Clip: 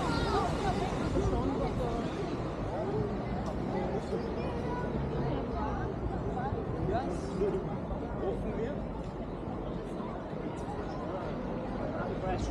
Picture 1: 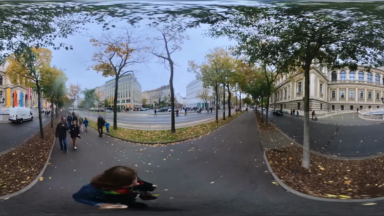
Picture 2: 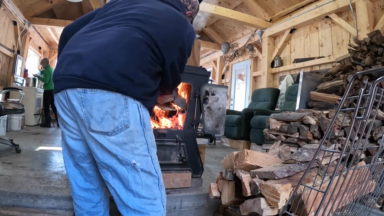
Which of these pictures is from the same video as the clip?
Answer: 1